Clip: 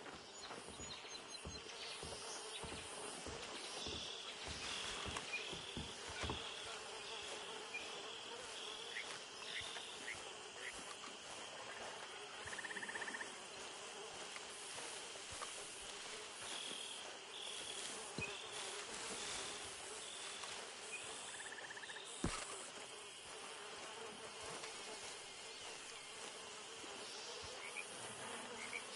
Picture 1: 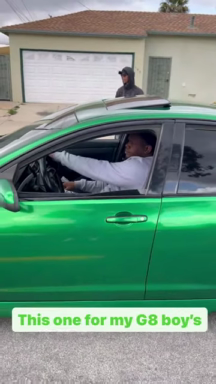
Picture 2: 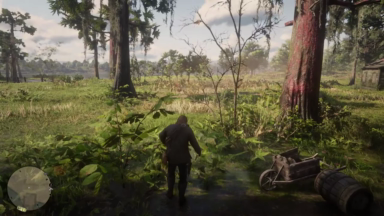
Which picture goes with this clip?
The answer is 2